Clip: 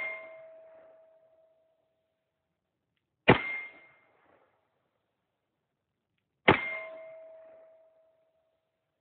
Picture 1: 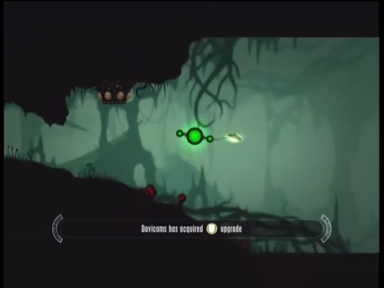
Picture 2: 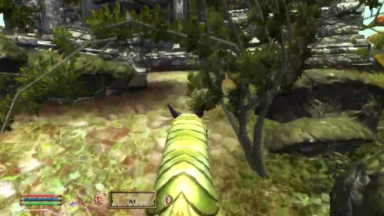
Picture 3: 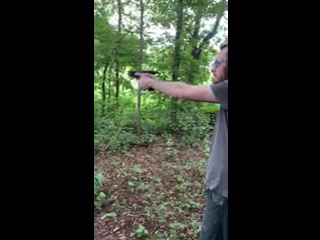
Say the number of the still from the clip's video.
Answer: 3